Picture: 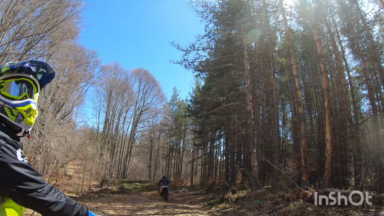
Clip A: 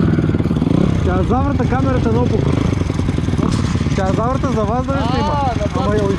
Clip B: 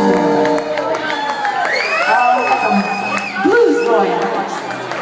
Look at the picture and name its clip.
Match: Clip A